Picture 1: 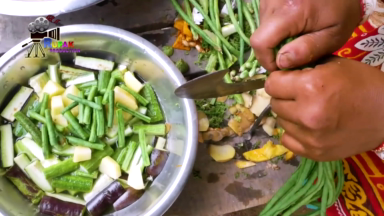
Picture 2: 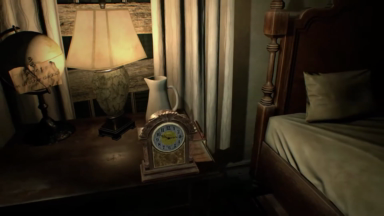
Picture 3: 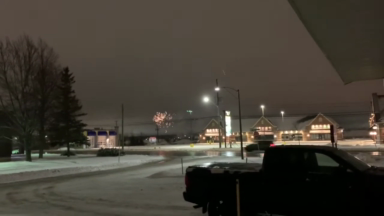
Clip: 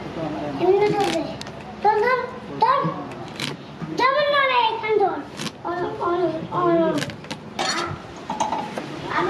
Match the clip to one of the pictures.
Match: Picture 1